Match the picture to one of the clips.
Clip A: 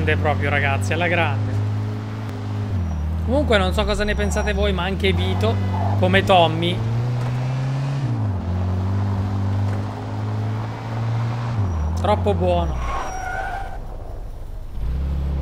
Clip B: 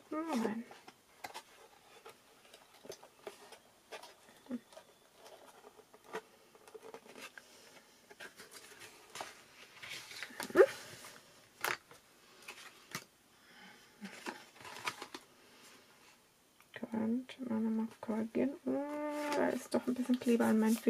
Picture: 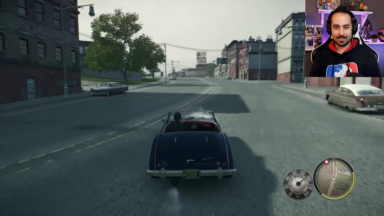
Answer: A